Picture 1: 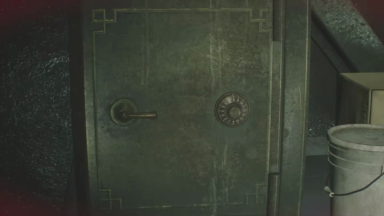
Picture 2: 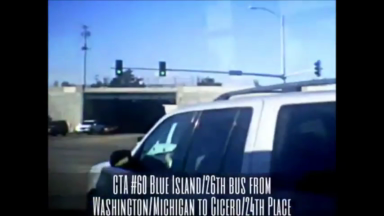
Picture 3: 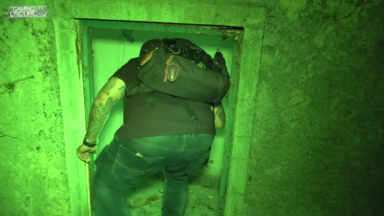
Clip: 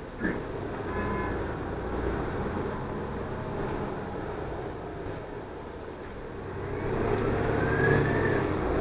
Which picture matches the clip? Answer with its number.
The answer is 2